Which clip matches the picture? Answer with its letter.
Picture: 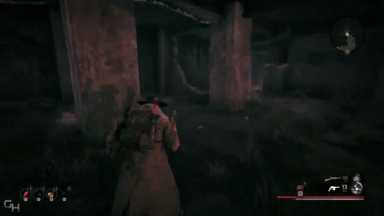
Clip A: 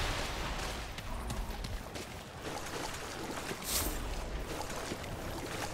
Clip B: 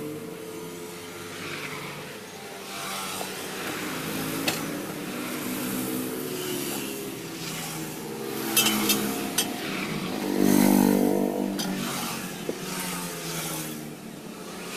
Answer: A